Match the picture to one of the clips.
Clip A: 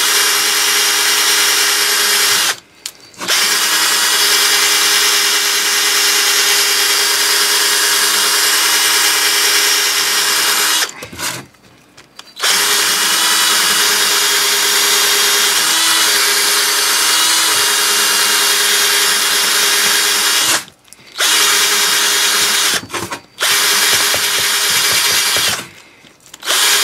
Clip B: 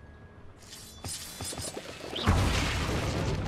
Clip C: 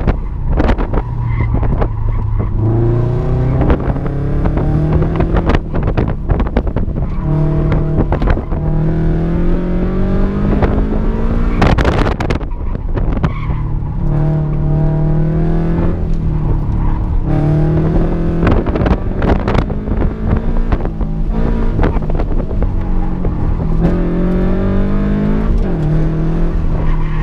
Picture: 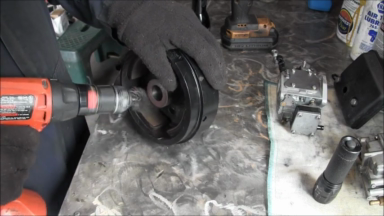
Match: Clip A